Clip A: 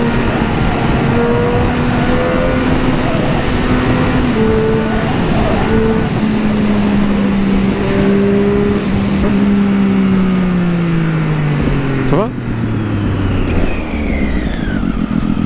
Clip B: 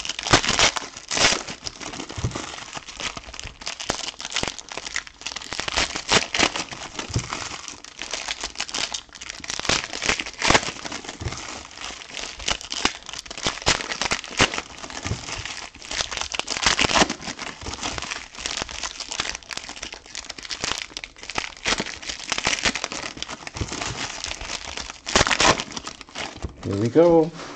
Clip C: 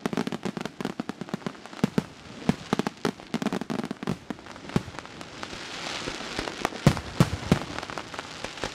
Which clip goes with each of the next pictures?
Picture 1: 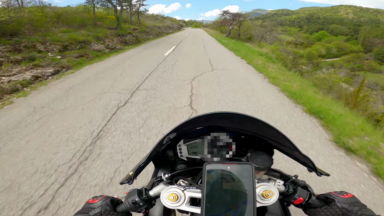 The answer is A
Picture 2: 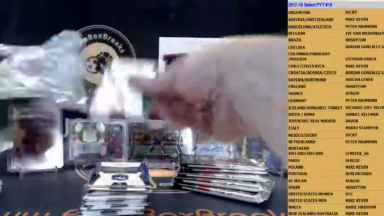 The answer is B